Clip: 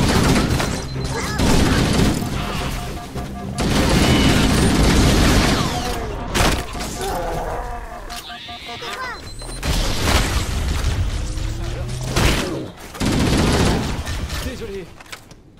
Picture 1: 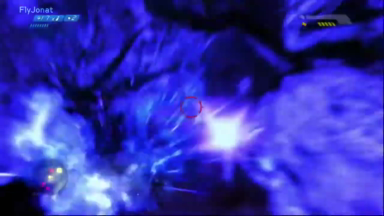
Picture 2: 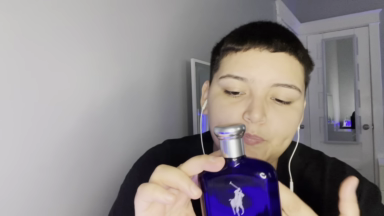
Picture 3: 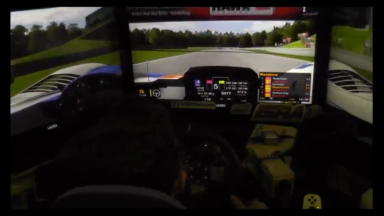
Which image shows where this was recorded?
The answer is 1